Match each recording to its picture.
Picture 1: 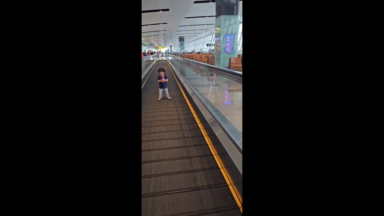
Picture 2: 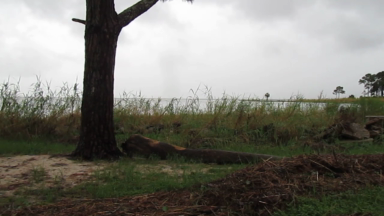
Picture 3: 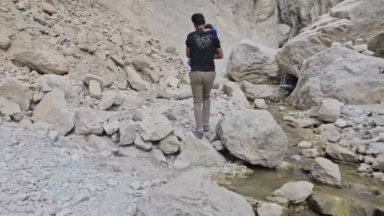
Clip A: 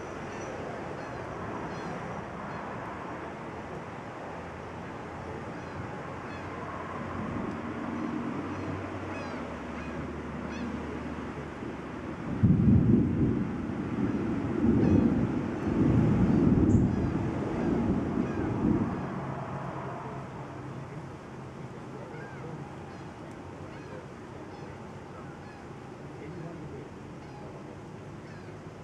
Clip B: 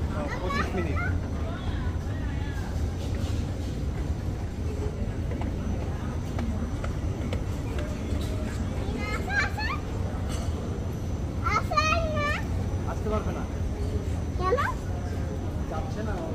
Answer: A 2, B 1